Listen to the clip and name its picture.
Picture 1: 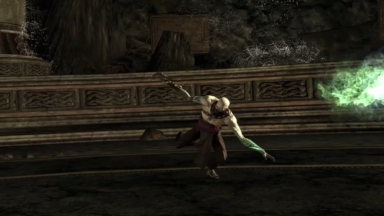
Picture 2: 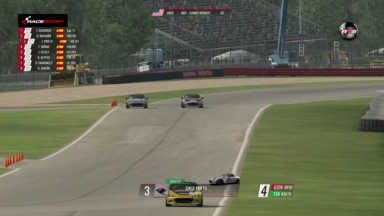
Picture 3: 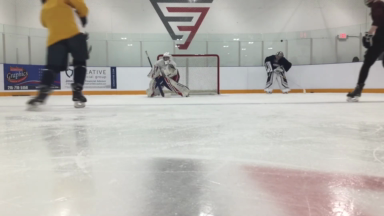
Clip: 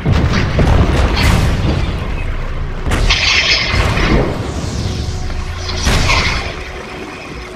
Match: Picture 1